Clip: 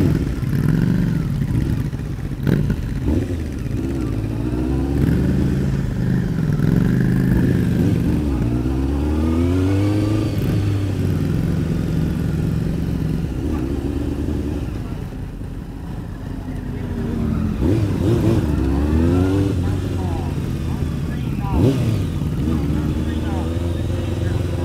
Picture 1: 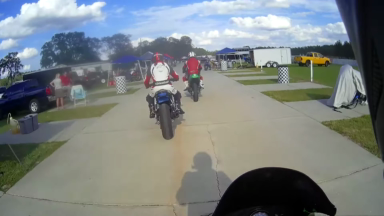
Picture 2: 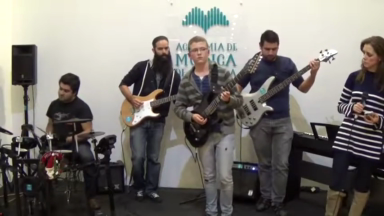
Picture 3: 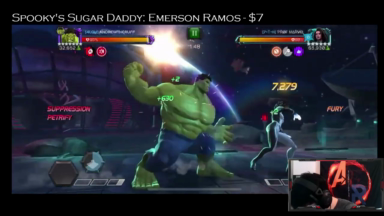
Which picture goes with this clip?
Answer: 1